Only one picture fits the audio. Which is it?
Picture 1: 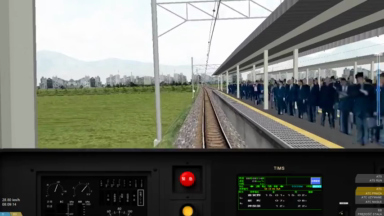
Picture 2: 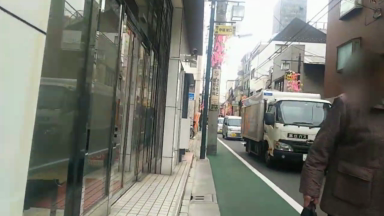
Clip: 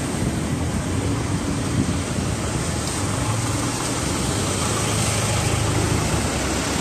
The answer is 2